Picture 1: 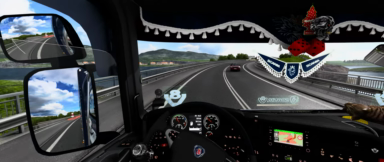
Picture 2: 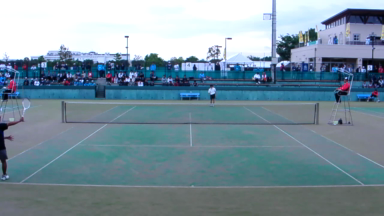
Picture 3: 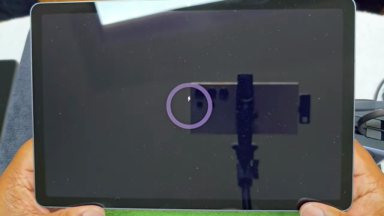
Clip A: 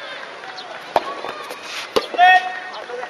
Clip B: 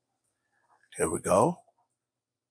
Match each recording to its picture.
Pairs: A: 2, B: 3